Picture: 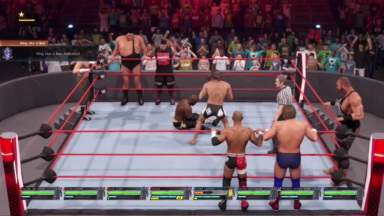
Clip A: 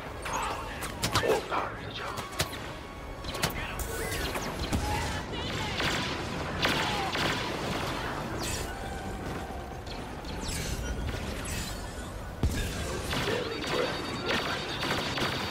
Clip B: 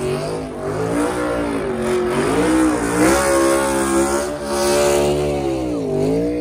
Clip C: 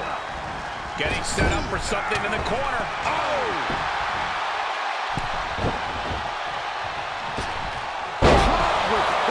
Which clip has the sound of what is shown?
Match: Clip C